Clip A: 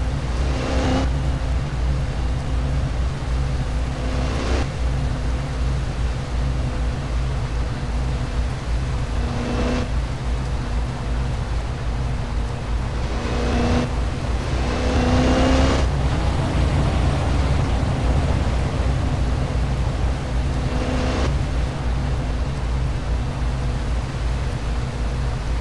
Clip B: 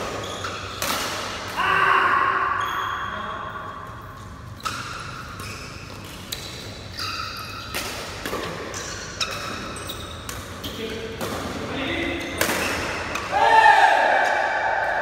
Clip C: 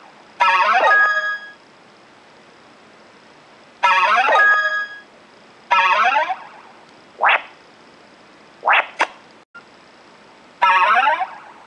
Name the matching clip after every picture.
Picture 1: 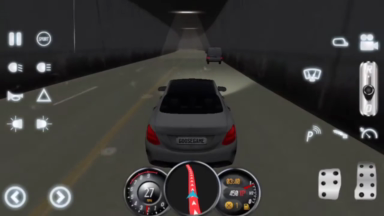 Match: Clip A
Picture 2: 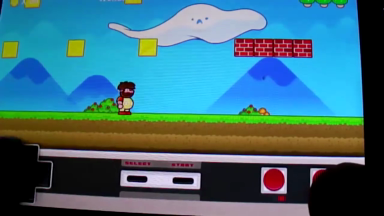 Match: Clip C